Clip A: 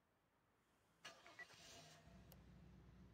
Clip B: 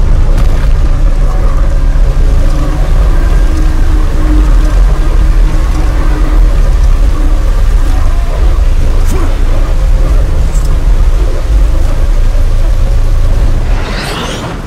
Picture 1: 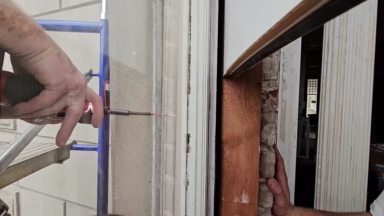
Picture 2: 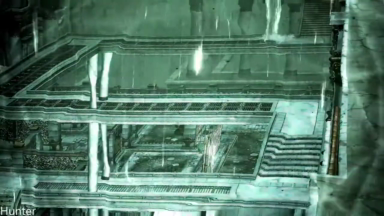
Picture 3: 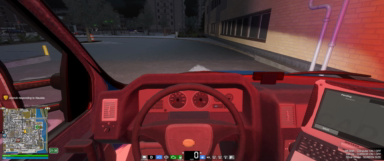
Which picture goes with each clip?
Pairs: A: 3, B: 2